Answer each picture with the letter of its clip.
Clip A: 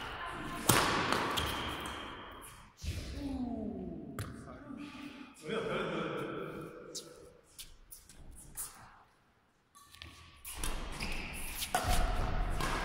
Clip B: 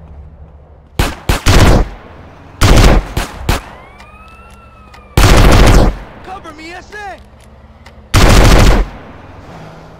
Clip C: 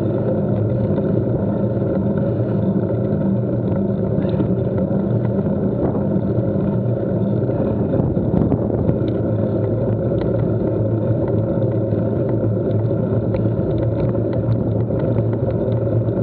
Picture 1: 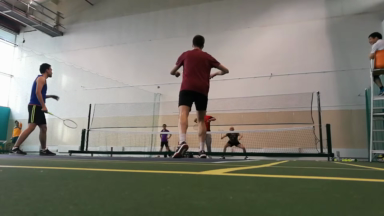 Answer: A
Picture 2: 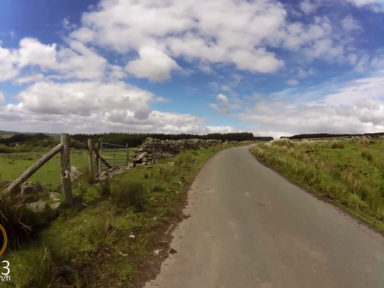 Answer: C